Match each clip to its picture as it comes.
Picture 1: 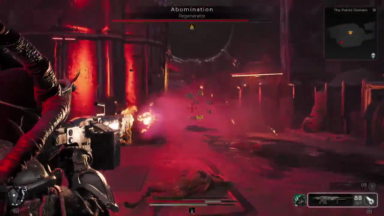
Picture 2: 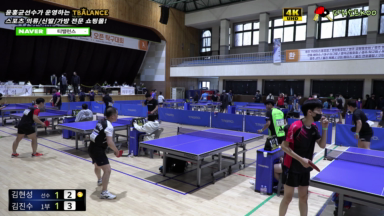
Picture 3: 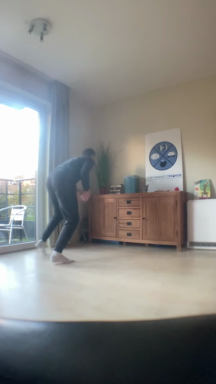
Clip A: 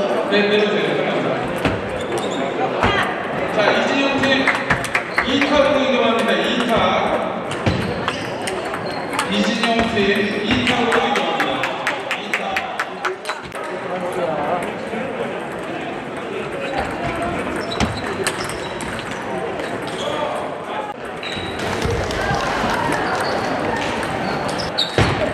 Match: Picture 2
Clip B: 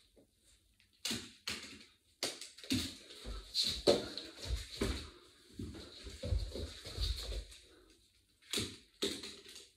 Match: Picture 3